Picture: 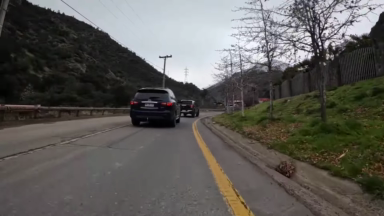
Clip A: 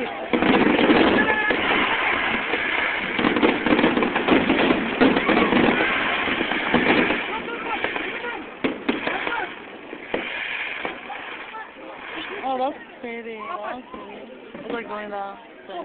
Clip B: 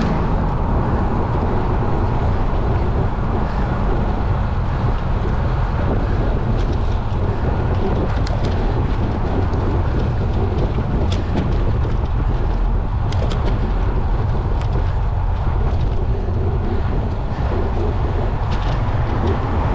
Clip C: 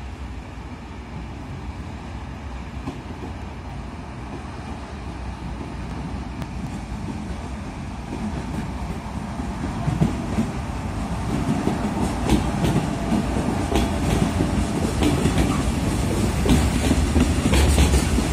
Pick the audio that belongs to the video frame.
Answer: B